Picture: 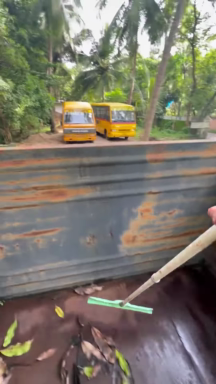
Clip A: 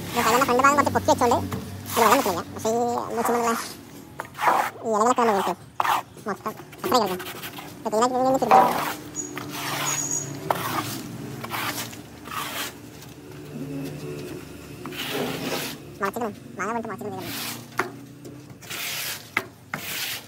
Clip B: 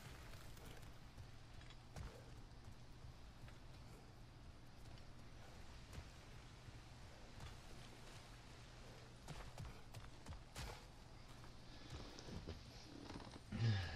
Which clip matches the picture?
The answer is A